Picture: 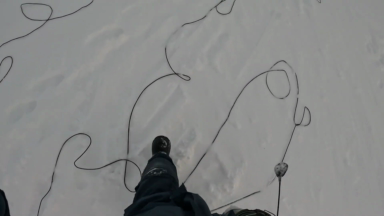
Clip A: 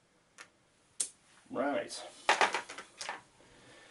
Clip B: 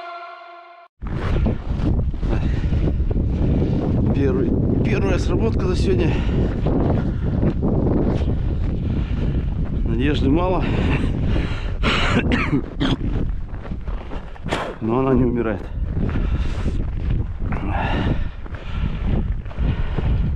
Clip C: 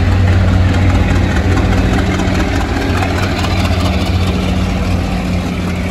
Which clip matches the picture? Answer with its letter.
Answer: B